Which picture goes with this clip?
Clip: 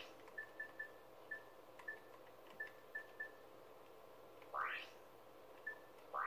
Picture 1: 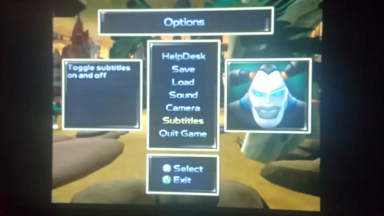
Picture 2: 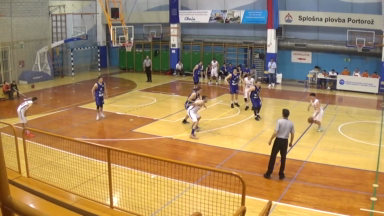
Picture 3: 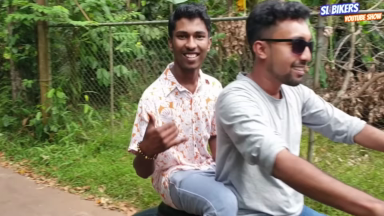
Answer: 1